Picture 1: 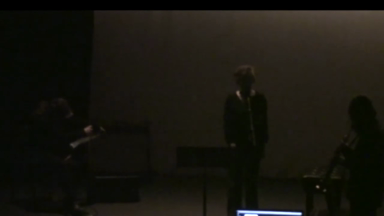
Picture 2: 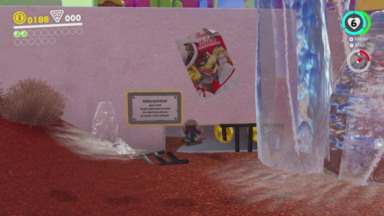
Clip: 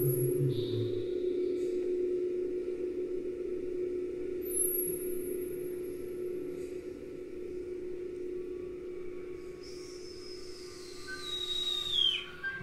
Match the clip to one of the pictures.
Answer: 1